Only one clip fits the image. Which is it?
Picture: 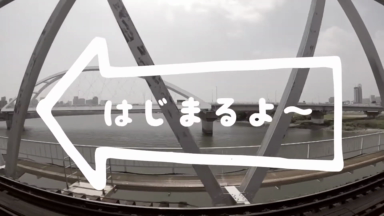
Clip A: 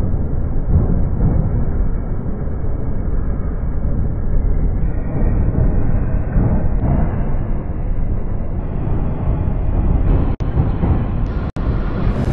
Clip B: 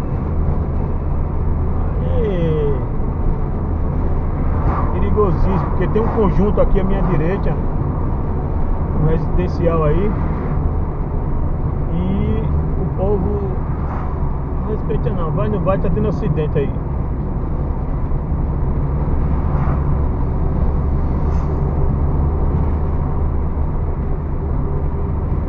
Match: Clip A